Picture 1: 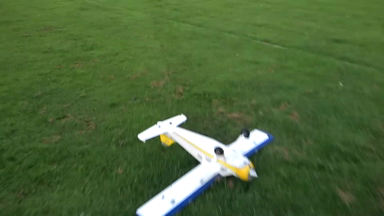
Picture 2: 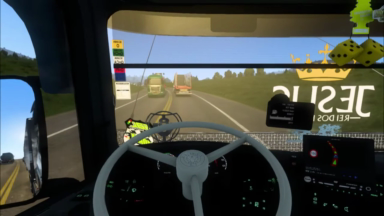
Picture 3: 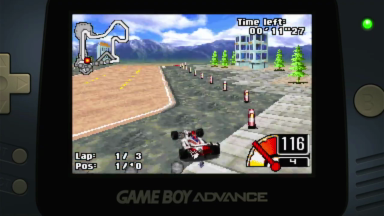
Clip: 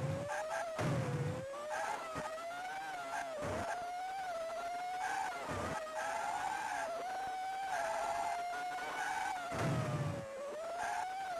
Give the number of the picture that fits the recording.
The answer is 3